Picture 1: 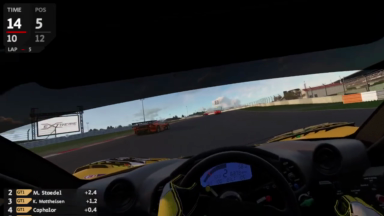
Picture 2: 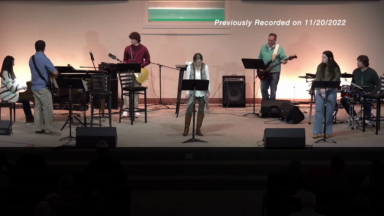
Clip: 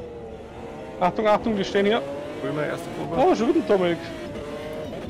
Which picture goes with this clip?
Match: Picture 1